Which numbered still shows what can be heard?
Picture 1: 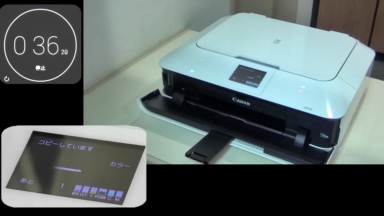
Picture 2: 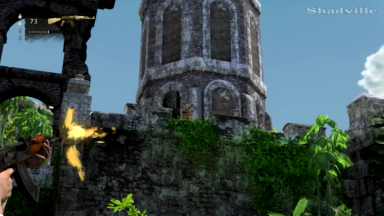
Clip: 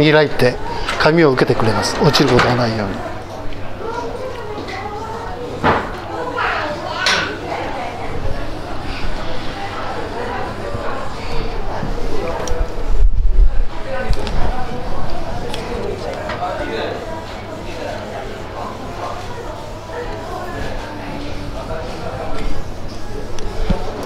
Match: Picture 1